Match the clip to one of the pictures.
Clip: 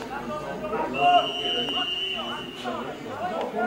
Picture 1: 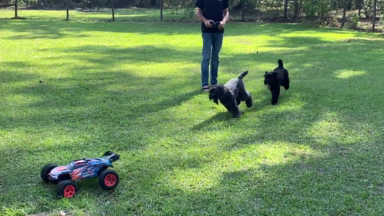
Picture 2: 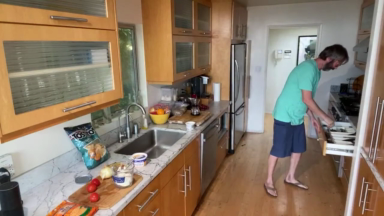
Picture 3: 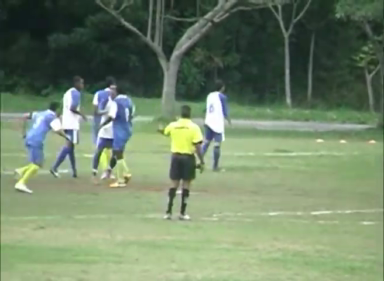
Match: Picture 3